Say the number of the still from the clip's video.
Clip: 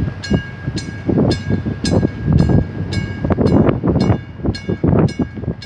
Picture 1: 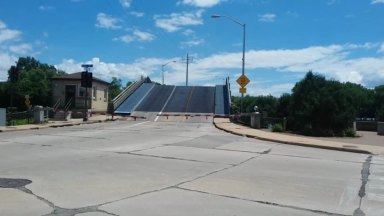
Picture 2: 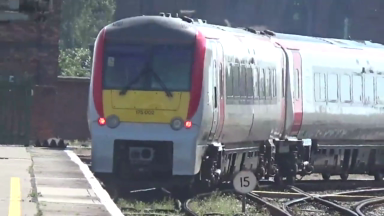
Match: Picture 1